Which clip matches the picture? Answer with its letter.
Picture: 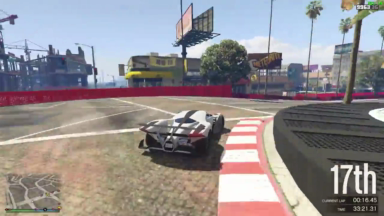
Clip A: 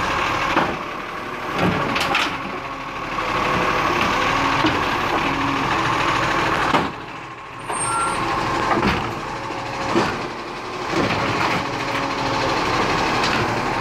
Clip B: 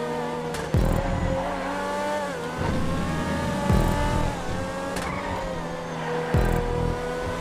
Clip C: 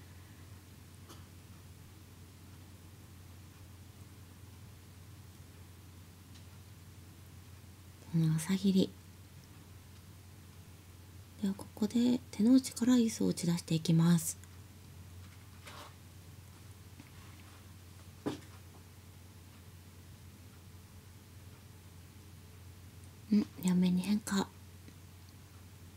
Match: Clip B